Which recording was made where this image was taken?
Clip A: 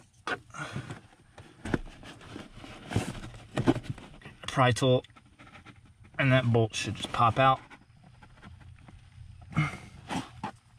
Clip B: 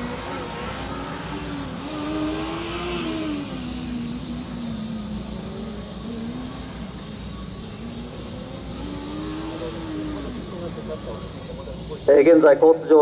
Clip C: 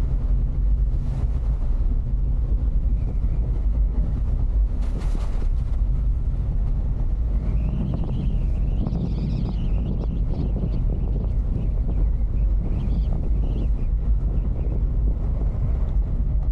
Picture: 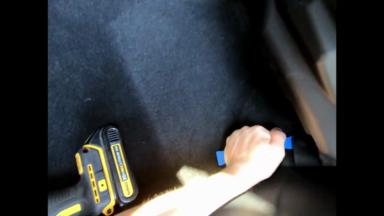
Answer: A